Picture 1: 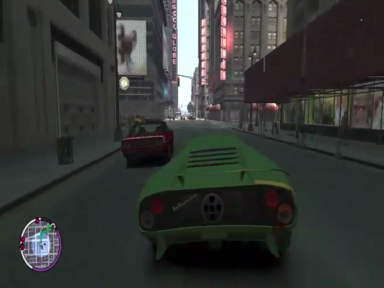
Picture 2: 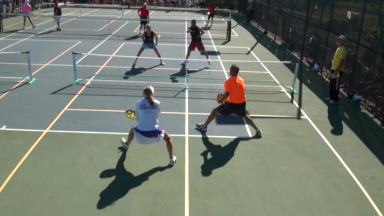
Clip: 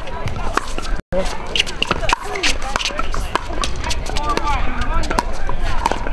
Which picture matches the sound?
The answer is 2